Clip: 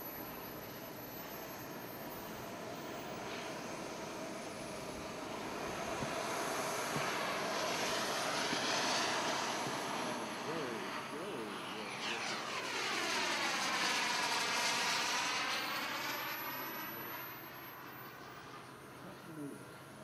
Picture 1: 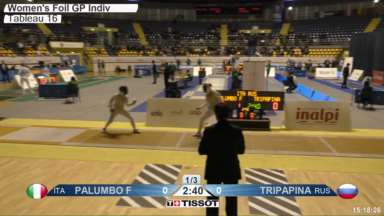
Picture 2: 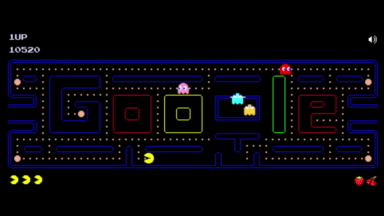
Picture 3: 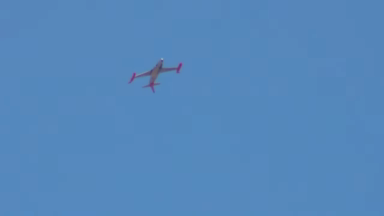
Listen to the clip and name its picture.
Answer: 3